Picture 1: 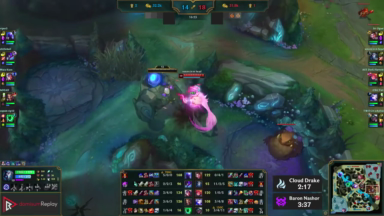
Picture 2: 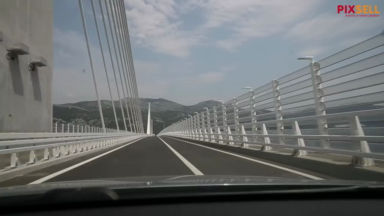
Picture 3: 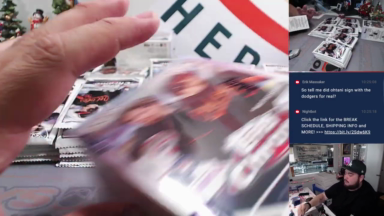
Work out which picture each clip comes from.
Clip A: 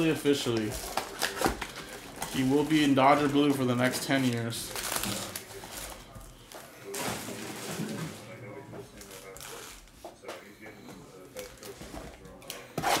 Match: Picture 3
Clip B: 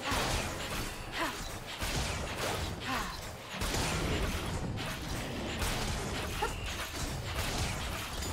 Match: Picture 1